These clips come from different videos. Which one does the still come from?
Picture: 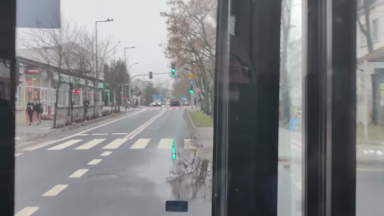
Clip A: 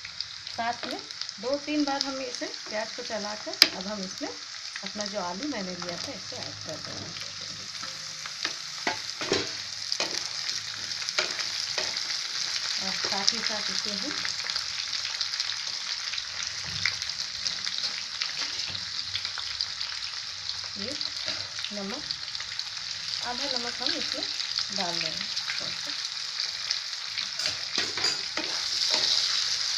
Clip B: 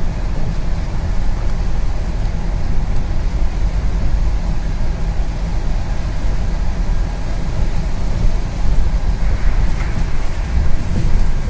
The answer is B